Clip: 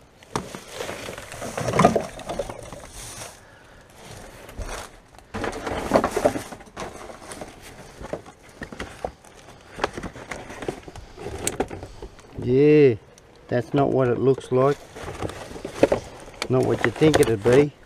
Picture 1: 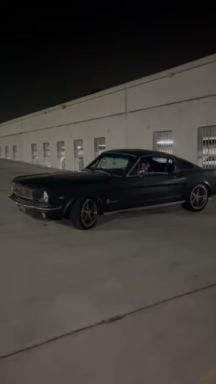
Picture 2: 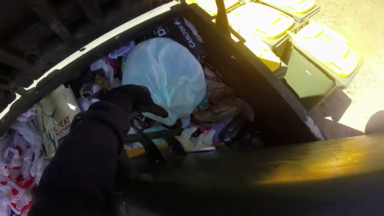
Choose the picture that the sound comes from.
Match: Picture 2